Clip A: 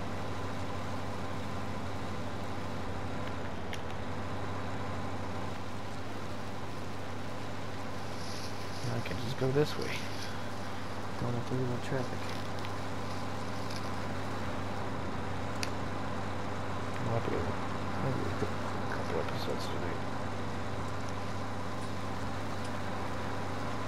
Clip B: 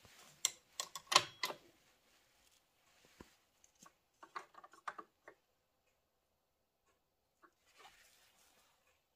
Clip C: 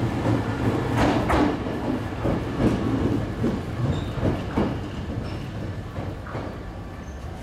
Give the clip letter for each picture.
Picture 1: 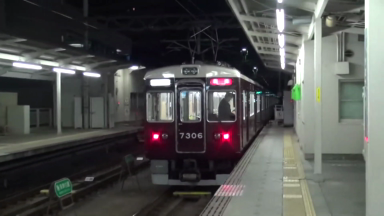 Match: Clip C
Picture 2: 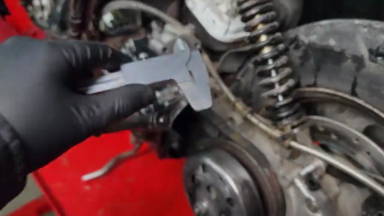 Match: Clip B